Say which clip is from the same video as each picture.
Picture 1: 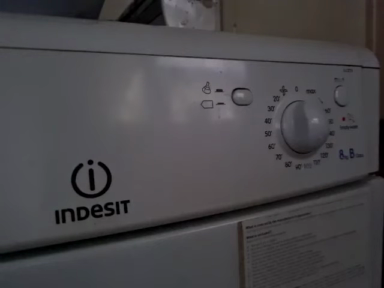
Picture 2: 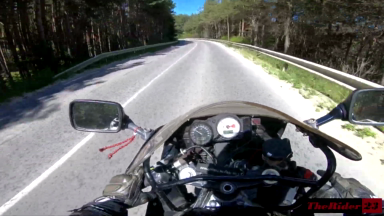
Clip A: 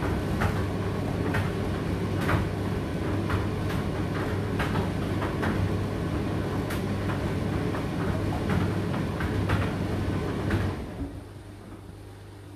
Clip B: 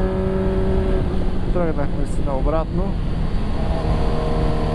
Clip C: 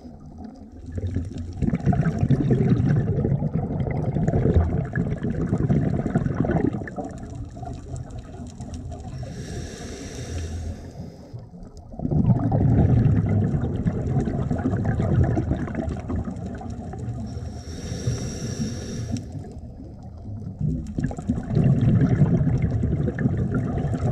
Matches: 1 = A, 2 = B